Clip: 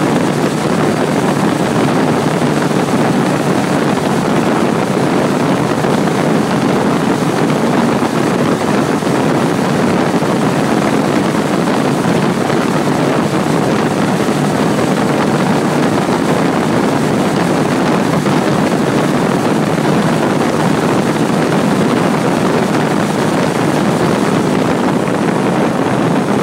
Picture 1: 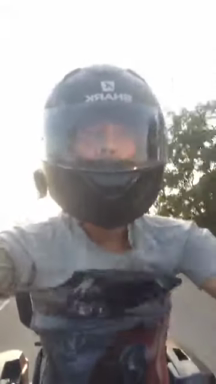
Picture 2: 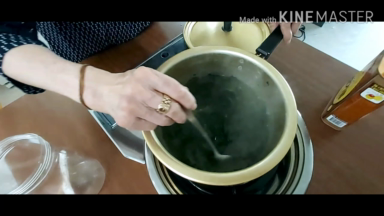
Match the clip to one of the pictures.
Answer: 1